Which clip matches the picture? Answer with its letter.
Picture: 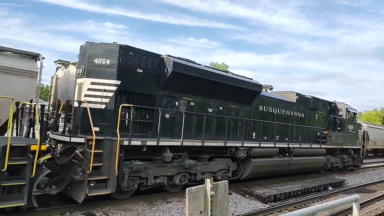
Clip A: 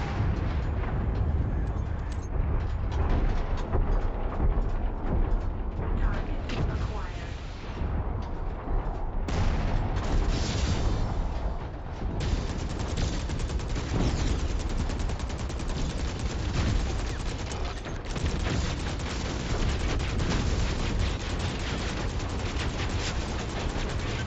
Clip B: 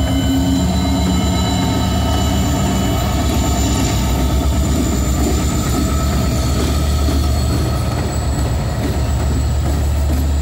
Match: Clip B